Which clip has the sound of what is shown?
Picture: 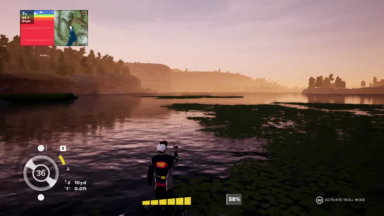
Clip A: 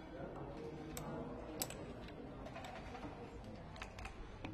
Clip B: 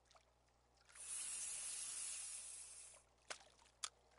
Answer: B